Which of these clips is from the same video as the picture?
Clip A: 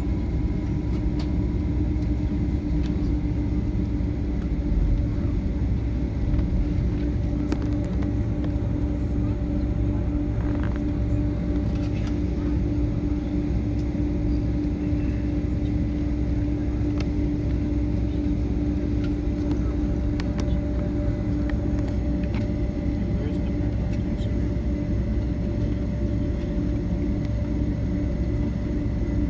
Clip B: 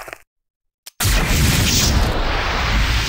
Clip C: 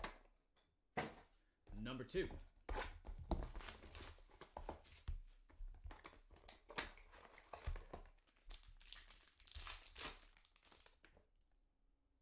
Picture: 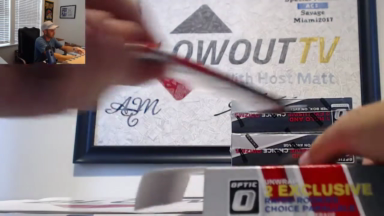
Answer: C